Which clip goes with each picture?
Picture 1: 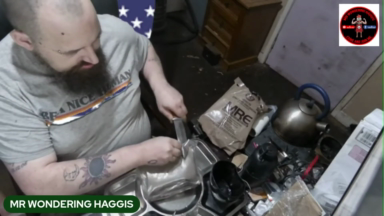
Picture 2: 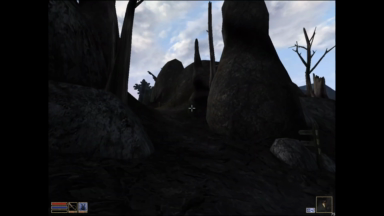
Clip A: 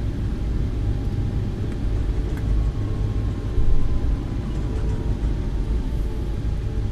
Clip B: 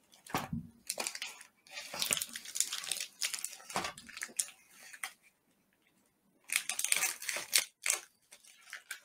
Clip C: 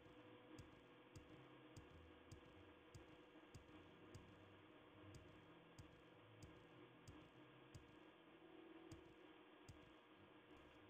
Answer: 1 B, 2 C